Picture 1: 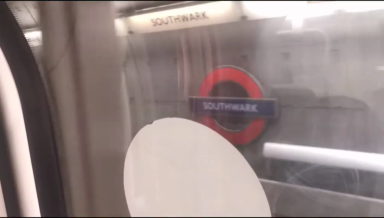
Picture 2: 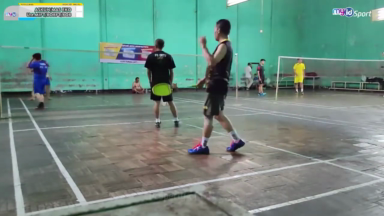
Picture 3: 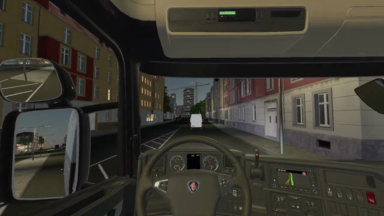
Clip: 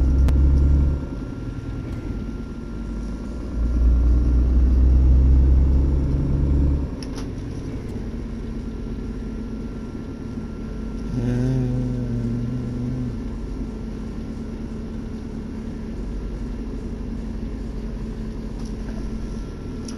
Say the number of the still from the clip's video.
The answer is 3